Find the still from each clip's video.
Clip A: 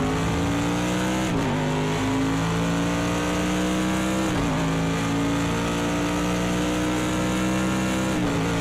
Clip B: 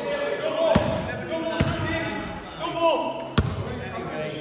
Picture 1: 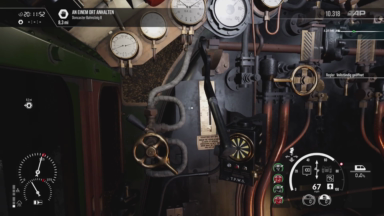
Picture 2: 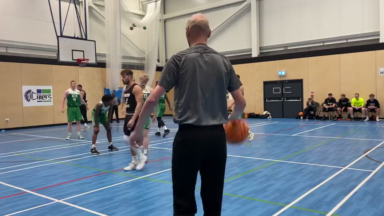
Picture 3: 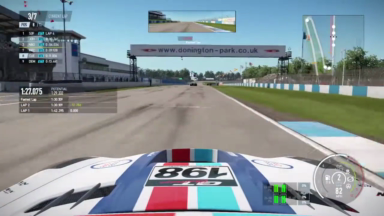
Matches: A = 3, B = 2